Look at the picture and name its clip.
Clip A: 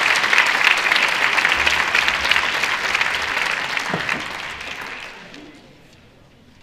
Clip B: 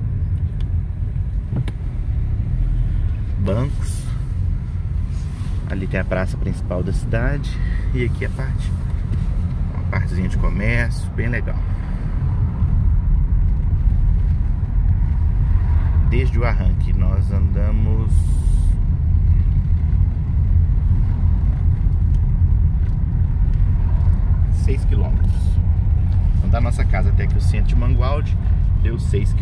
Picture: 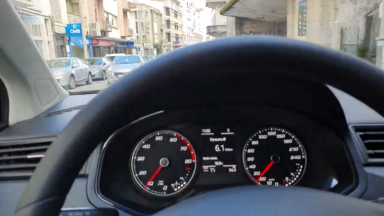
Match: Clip B